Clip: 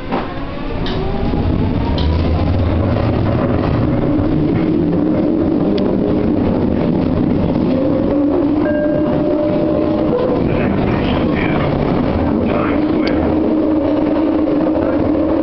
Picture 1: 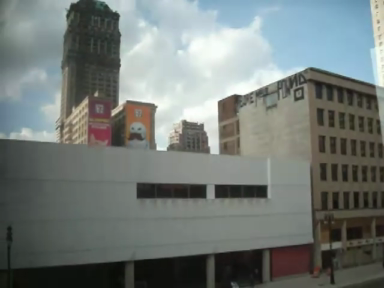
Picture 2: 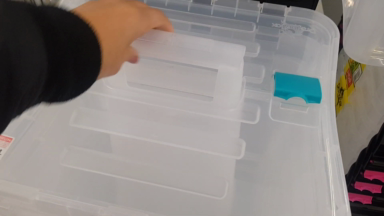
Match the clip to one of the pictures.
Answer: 1